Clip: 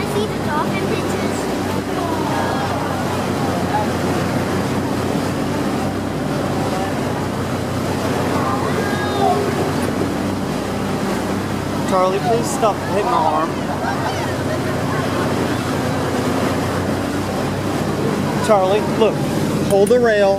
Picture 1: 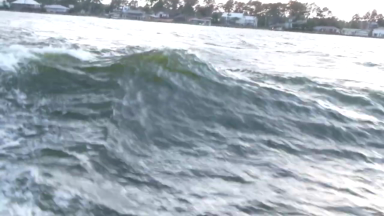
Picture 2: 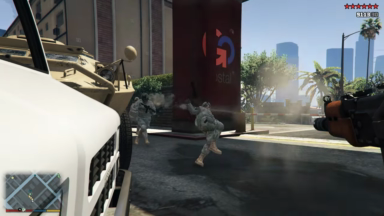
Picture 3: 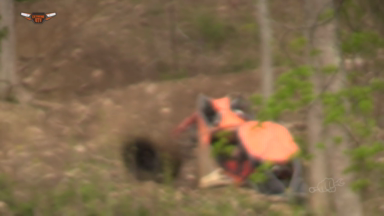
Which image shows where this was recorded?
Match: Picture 1